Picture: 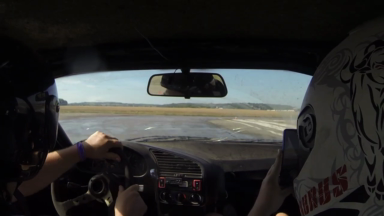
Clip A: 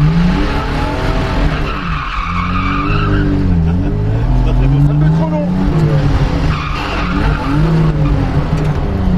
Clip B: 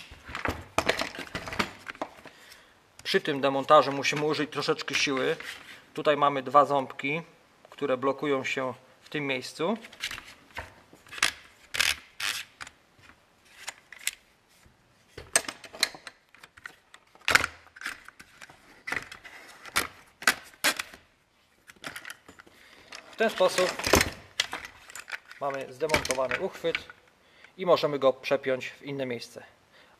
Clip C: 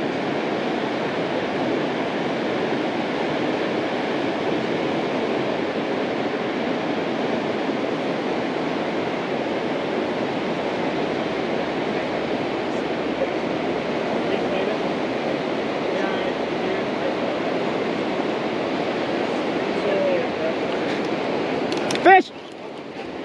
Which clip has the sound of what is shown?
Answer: A